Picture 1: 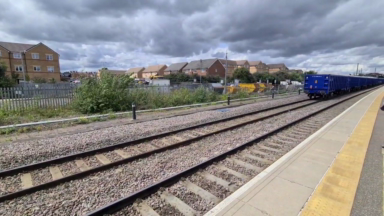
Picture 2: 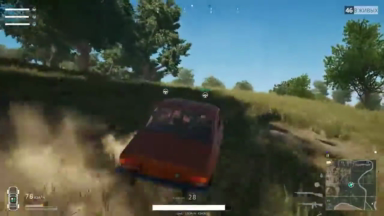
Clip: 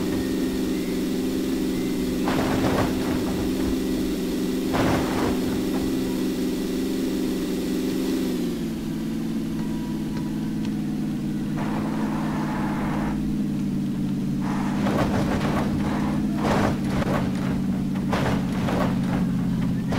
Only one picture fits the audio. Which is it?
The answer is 2